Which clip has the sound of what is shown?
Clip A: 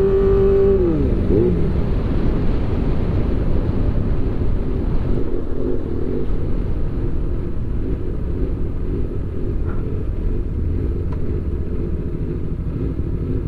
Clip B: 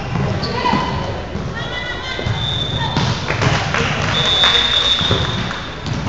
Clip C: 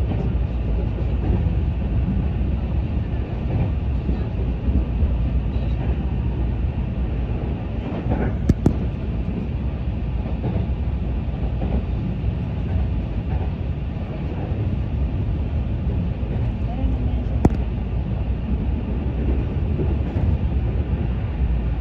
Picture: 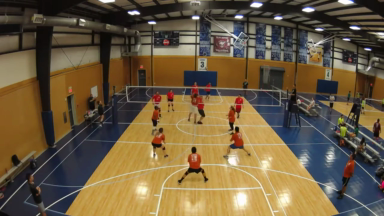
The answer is B